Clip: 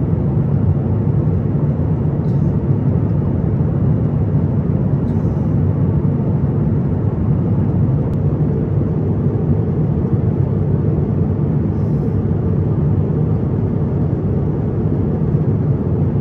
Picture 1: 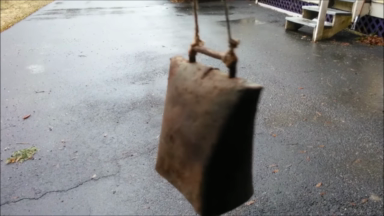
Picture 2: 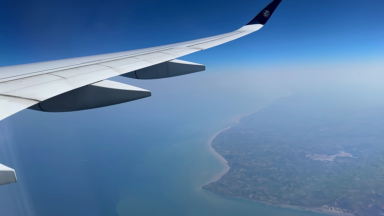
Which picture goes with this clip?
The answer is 2